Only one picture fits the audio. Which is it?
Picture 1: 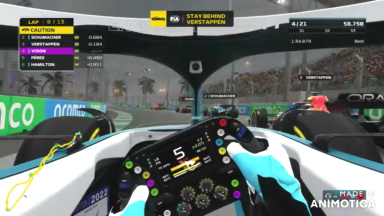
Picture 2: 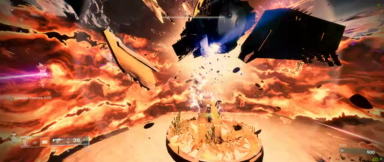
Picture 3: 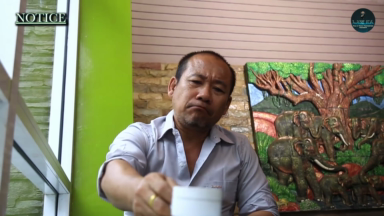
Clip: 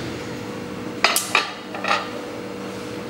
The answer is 3